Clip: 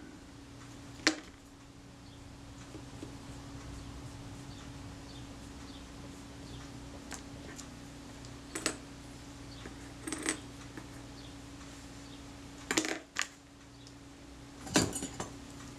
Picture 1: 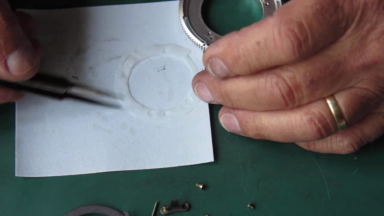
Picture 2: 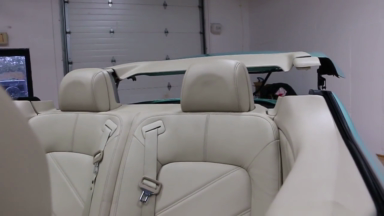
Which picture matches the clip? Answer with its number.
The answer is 1